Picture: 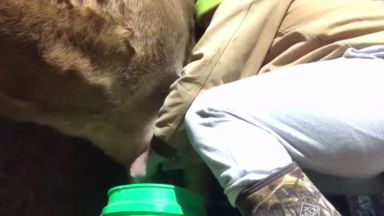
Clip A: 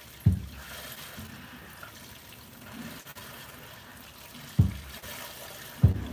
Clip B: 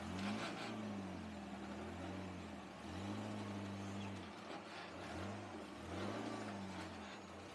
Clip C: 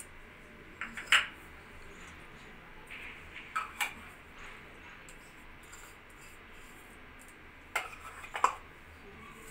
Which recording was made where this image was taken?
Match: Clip A